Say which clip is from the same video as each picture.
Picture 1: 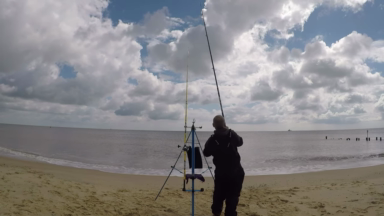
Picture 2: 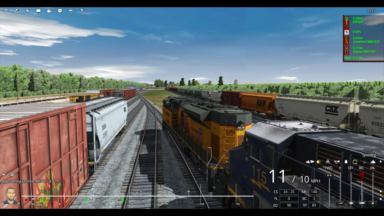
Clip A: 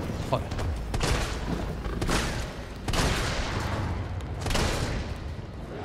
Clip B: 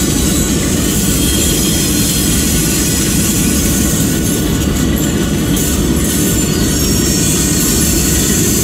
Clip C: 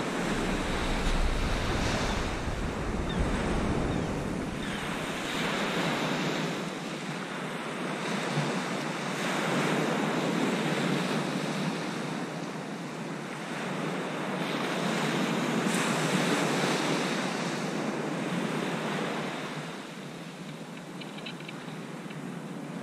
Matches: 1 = C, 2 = B